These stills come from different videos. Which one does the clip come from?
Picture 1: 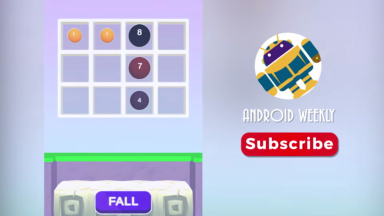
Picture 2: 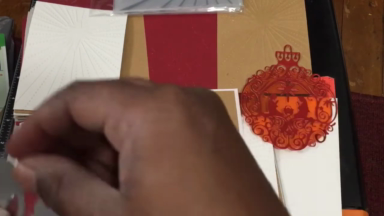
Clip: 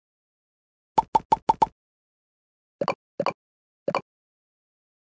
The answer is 1